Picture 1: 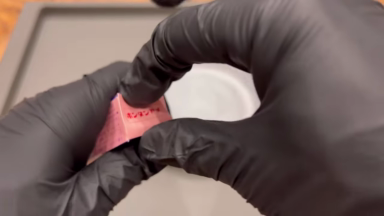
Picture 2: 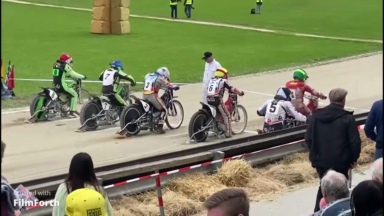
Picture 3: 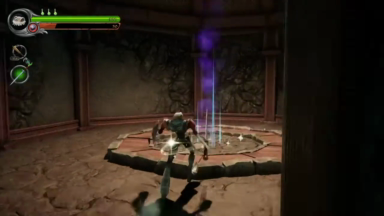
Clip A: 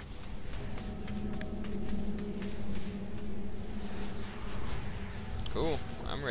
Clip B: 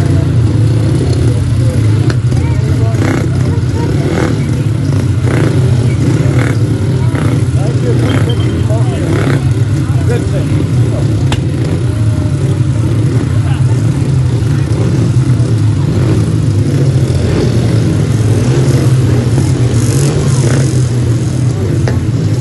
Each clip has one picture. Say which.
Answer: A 3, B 2